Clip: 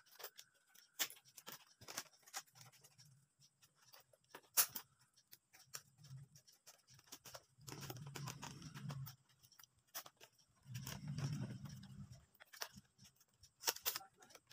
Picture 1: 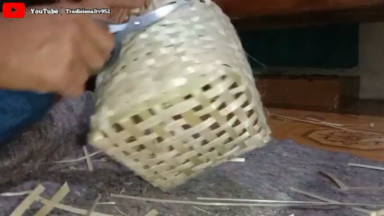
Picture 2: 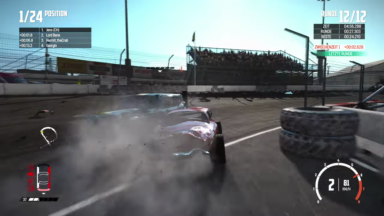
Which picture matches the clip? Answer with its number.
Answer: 1